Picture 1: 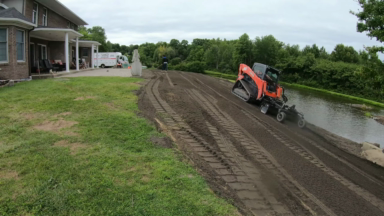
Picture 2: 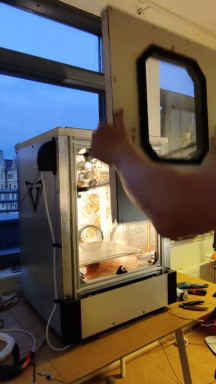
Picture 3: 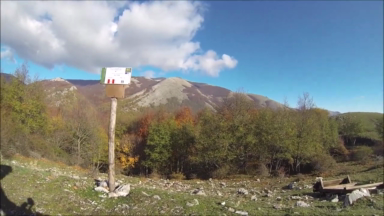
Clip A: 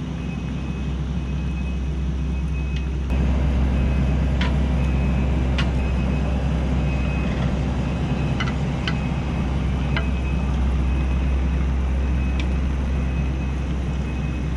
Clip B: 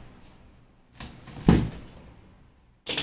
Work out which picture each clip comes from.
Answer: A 1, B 2